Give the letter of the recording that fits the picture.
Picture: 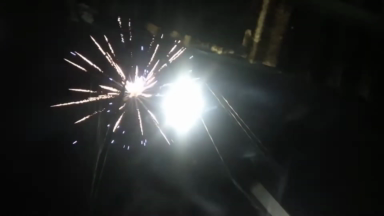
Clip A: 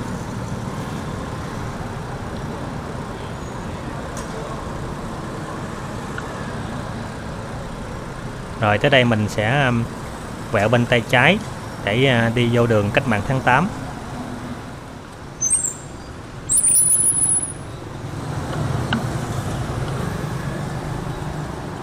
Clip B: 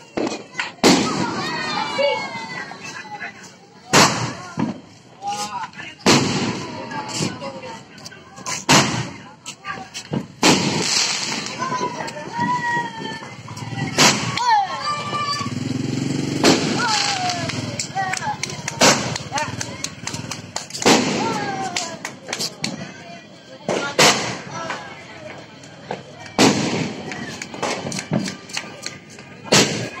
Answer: B